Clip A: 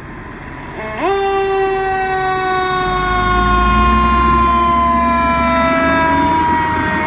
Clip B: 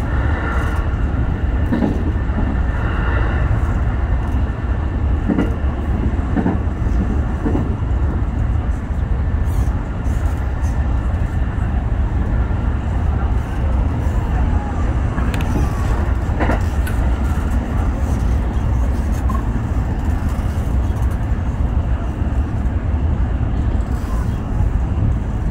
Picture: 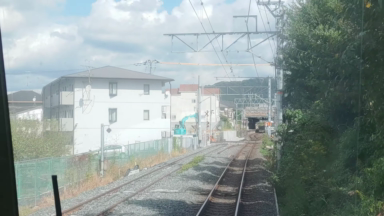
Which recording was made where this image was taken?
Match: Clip B